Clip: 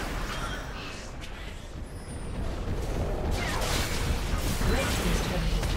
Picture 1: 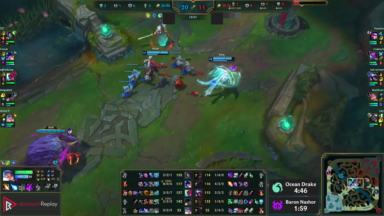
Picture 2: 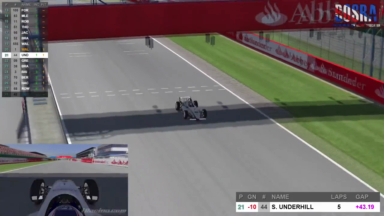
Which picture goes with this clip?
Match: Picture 1